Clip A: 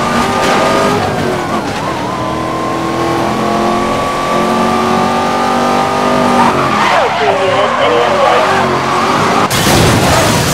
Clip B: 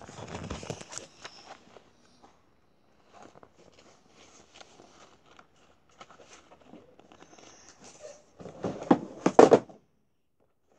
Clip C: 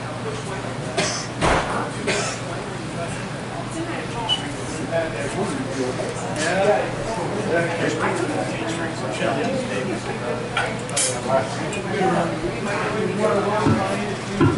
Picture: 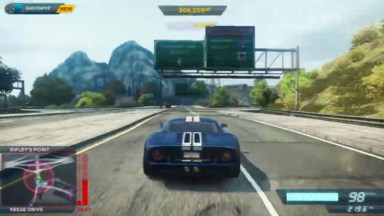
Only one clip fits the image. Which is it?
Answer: A